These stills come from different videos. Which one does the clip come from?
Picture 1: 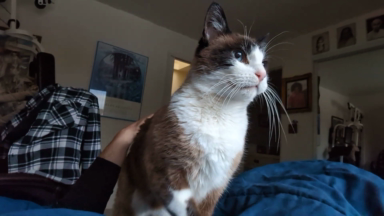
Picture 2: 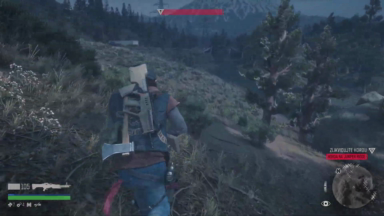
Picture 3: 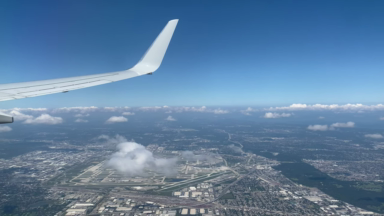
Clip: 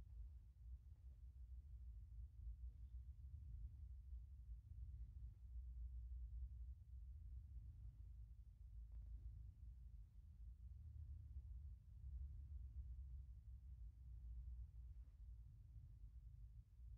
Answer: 1